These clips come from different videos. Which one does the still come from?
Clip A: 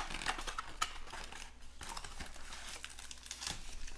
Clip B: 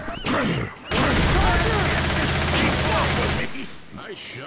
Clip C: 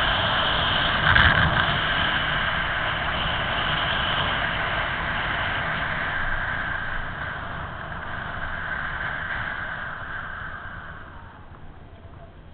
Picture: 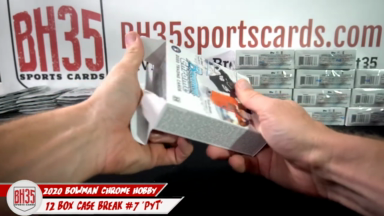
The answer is A